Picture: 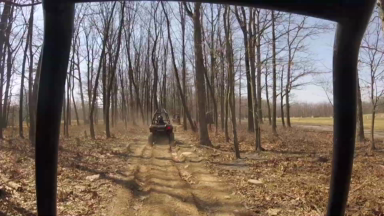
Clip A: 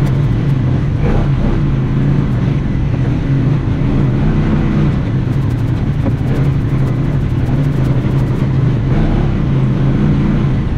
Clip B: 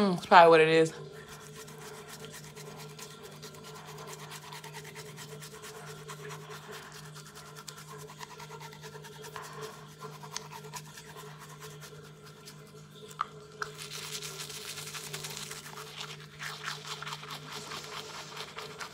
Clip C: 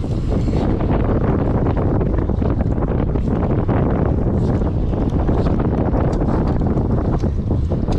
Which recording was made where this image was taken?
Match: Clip A